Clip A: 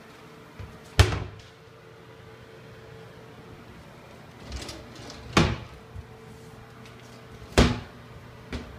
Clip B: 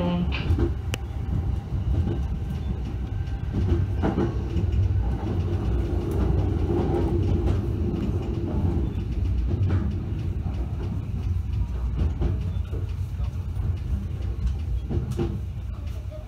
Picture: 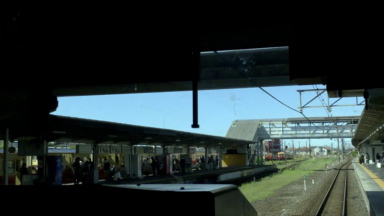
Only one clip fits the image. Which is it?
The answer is B